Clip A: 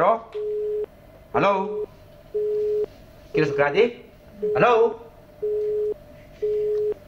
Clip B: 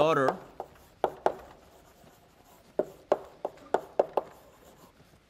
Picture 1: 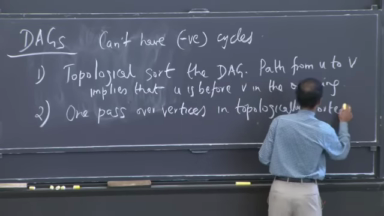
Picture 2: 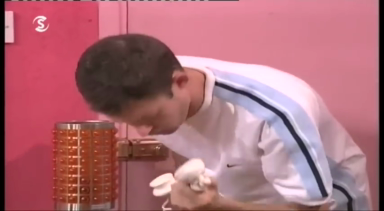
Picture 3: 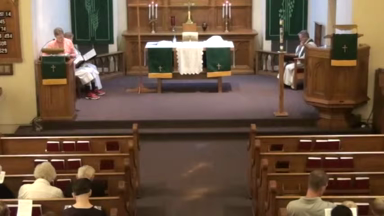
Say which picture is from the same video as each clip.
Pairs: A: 2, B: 1